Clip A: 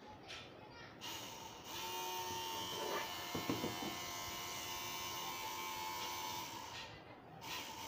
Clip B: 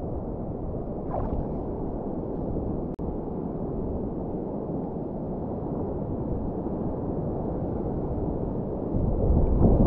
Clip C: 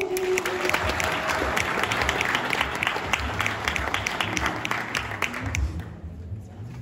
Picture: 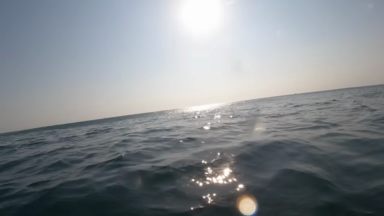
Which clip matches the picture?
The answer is B